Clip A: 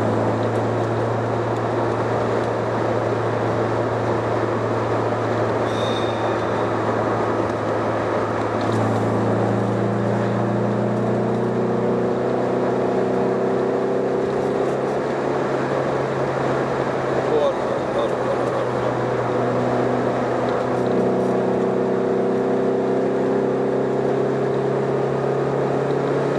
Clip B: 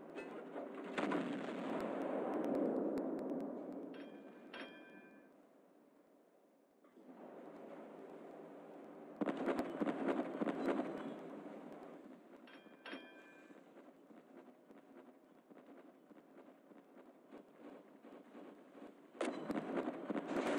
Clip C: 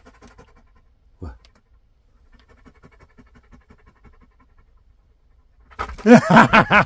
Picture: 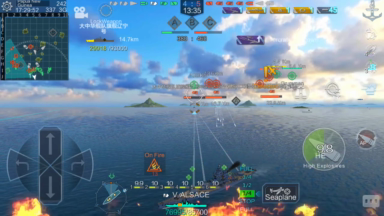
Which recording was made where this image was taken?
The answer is B